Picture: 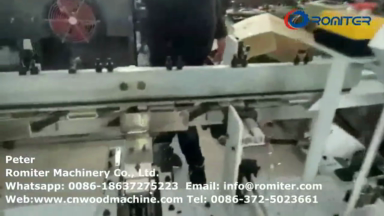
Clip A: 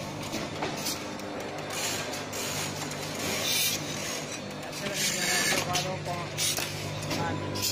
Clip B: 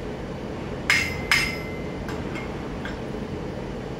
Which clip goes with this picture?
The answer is A